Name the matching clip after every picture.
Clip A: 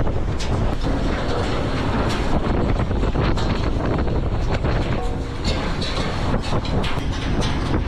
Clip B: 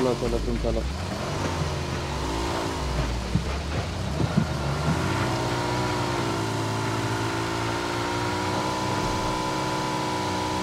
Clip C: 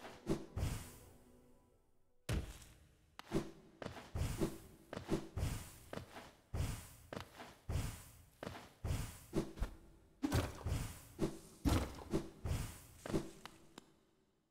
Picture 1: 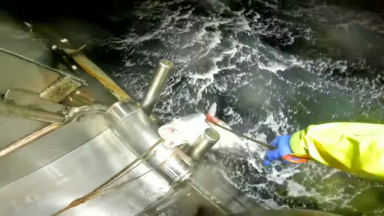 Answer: A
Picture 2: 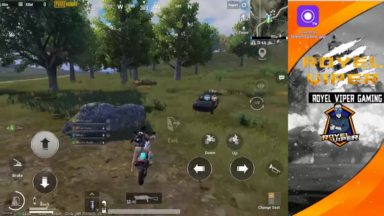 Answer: B